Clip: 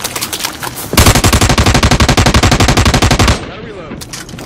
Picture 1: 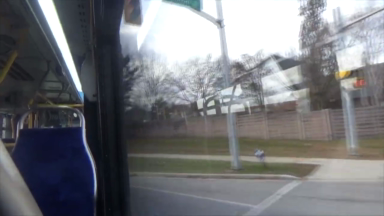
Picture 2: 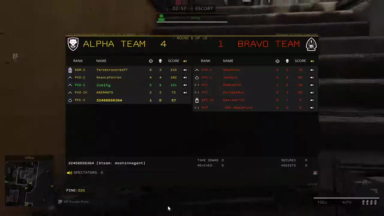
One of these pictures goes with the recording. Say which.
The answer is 2